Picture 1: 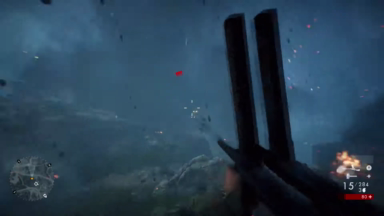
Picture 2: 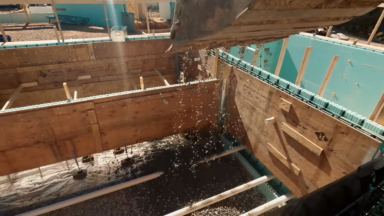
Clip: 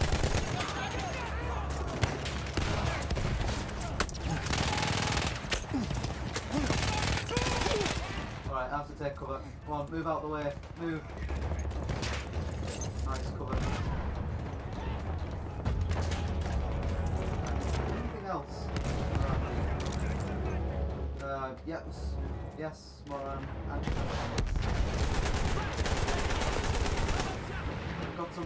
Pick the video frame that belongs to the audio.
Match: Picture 1